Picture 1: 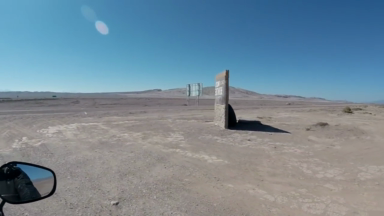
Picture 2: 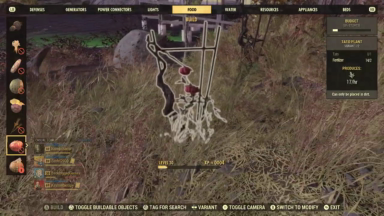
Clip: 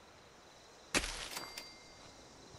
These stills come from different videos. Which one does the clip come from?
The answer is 2